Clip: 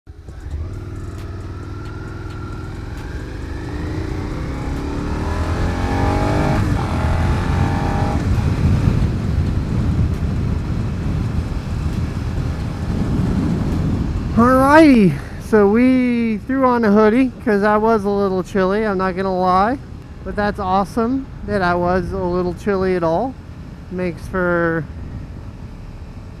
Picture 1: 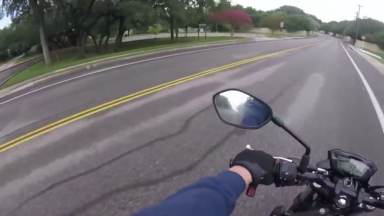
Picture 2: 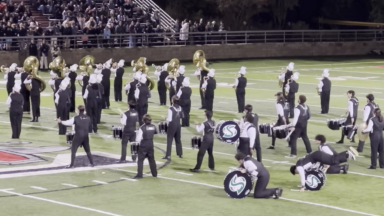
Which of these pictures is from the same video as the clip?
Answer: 1